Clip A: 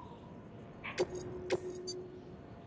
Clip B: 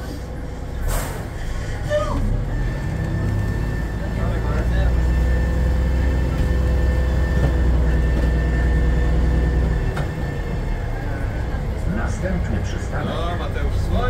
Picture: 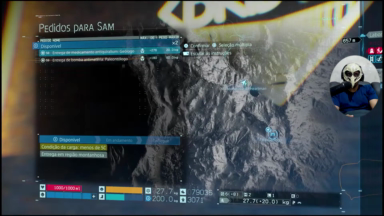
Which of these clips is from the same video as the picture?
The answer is A